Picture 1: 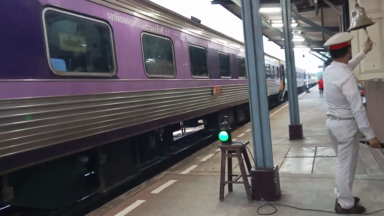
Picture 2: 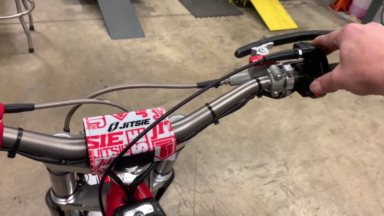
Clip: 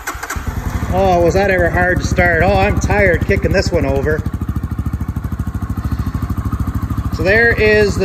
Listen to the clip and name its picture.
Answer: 2